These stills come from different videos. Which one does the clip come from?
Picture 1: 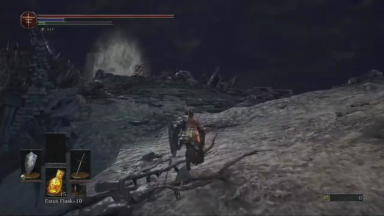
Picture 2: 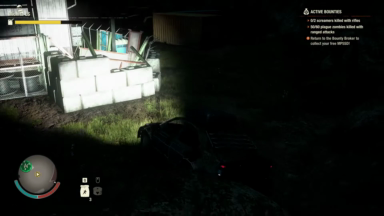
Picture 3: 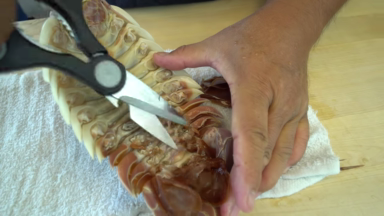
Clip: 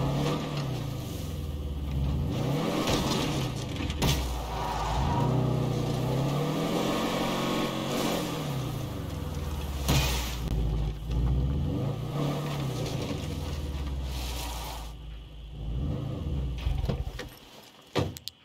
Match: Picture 2